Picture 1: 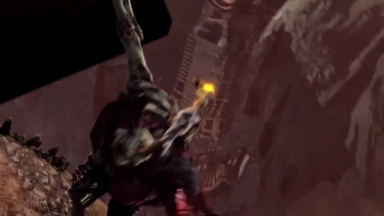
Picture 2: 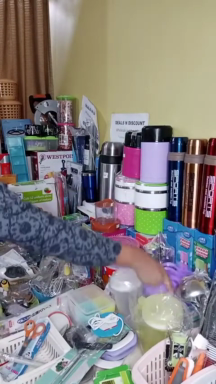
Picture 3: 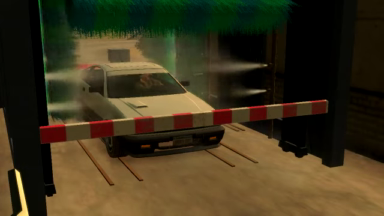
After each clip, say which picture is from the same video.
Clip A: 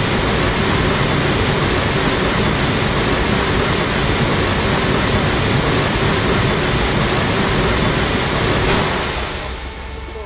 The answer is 3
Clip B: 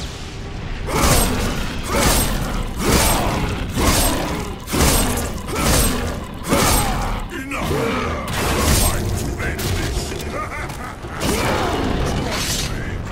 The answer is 1